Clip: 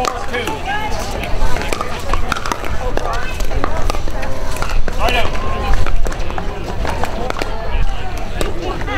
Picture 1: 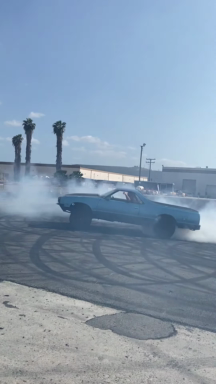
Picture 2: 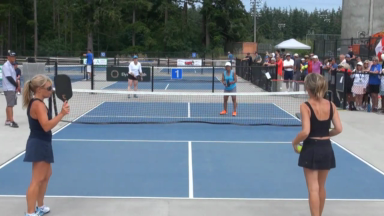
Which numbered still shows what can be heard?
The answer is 2